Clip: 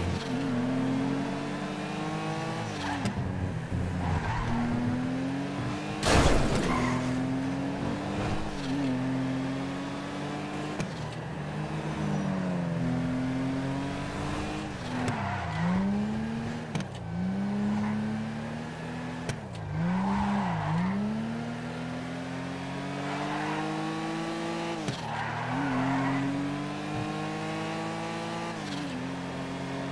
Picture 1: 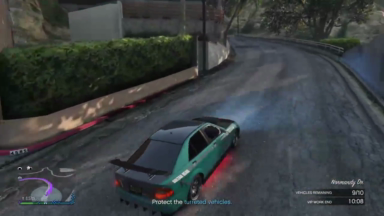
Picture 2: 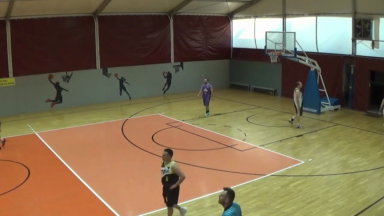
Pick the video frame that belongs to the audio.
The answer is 1